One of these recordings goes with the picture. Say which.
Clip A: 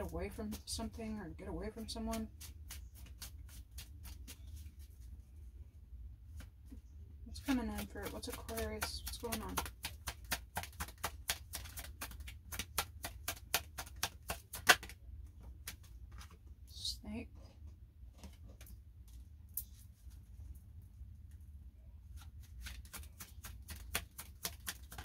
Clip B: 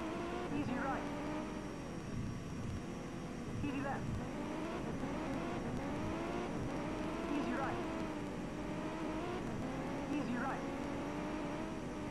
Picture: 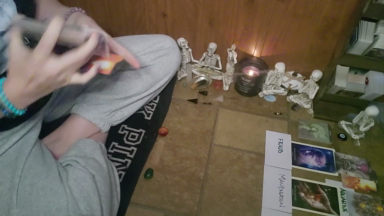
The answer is A